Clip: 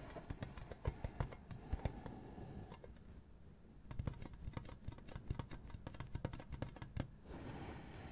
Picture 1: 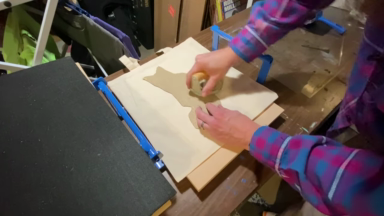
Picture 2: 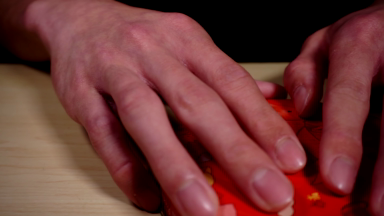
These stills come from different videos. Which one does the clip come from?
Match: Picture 2